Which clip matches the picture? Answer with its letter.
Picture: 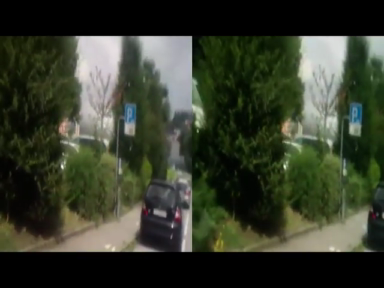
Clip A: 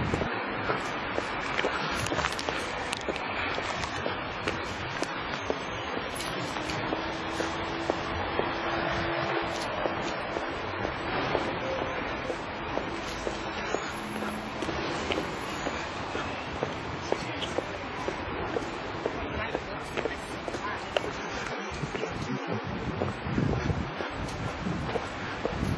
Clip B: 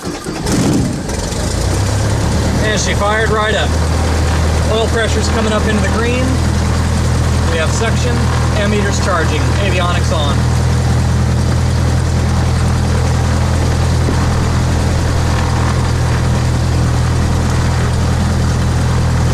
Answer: A